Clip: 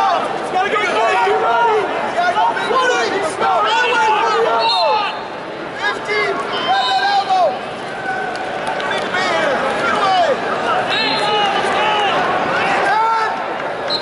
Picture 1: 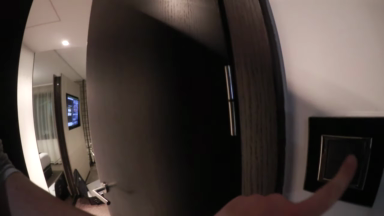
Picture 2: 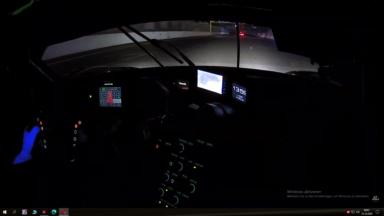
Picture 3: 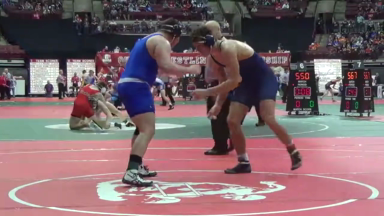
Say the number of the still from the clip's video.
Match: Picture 3